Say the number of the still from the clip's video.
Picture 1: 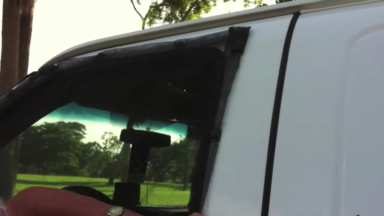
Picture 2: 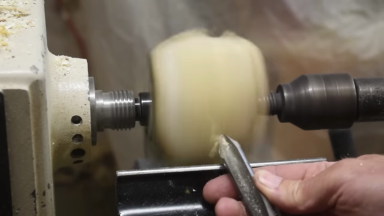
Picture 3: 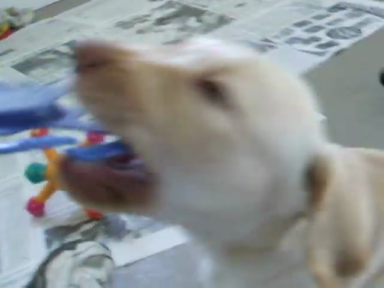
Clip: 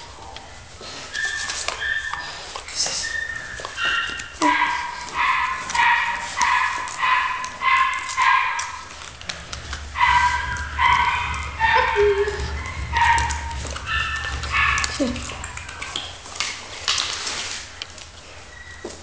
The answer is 3